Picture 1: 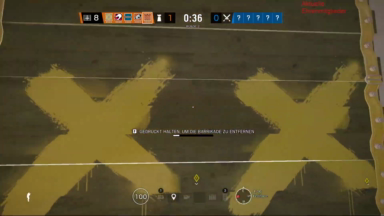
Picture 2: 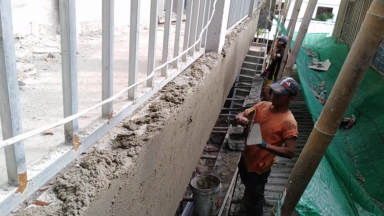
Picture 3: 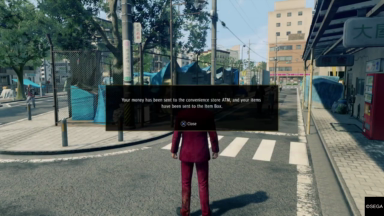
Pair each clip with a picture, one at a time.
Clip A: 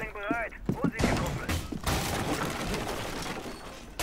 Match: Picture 1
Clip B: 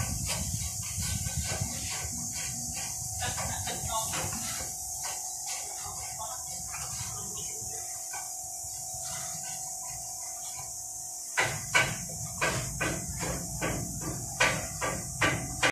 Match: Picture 2